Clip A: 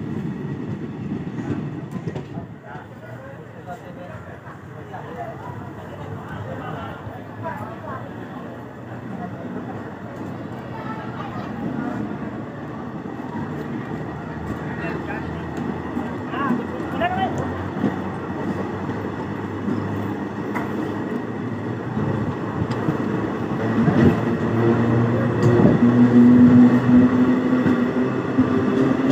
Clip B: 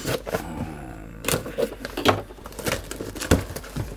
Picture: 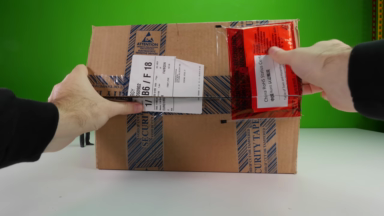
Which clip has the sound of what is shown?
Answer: B